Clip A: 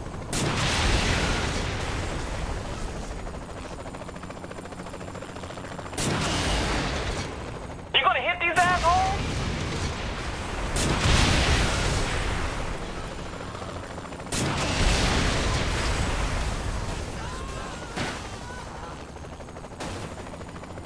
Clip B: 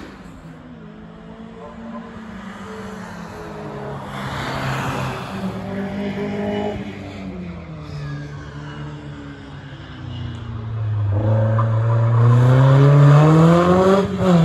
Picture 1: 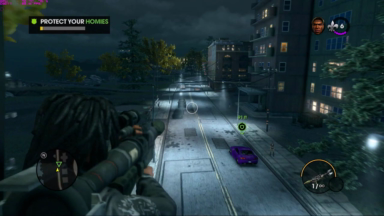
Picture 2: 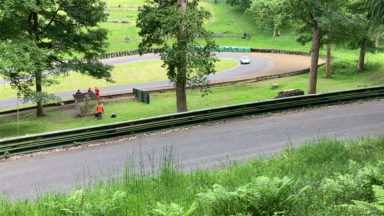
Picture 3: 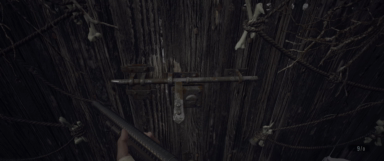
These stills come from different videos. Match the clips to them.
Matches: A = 1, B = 2